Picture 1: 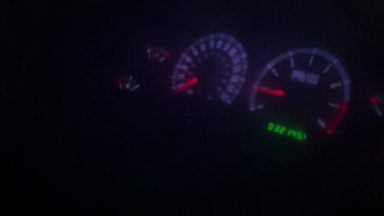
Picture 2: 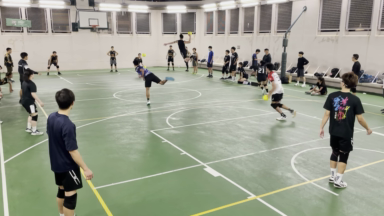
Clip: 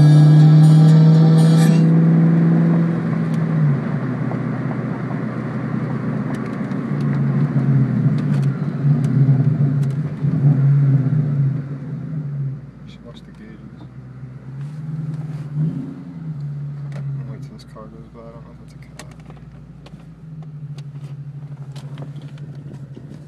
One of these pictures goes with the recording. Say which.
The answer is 1